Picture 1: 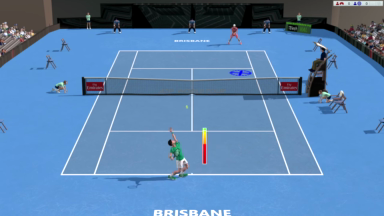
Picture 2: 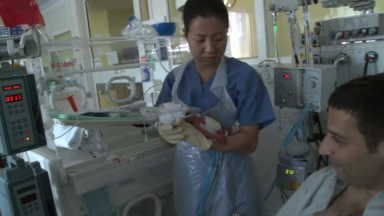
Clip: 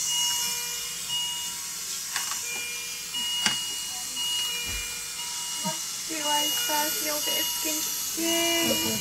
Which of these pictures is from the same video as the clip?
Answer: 2